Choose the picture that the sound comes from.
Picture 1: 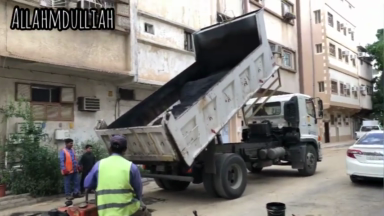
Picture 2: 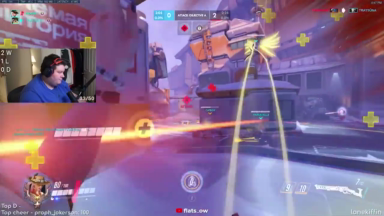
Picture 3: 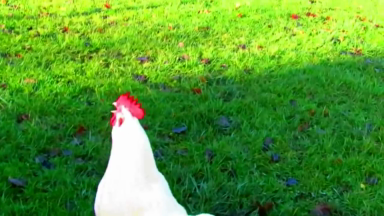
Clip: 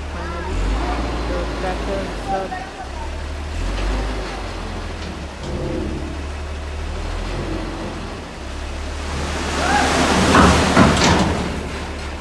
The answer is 1